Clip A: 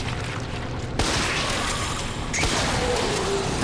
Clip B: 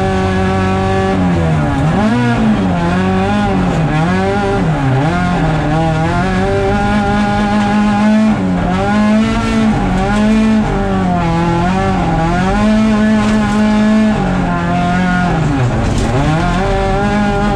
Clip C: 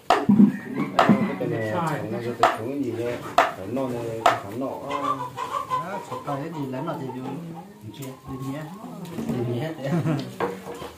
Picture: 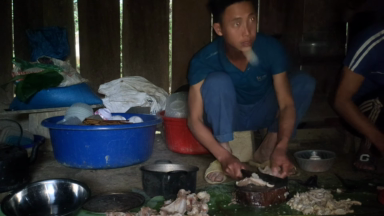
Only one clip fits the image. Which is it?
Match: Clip C